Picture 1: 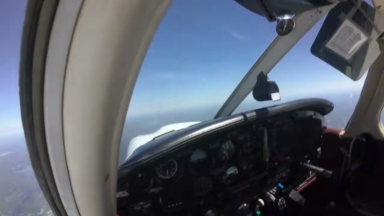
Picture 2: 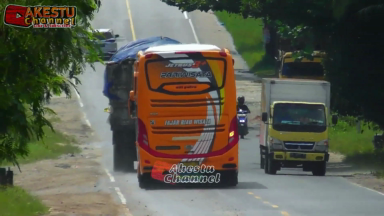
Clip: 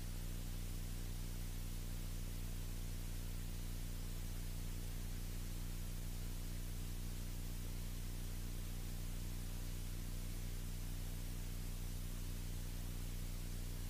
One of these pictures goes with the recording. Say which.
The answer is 1